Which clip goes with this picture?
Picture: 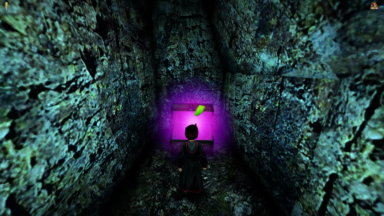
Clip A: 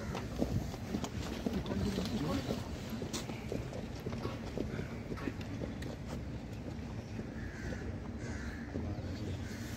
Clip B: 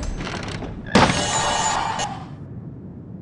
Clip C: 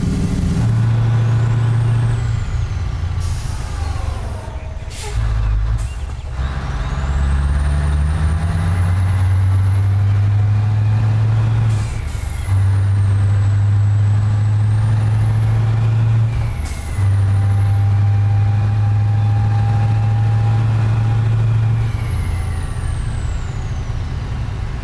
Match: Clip B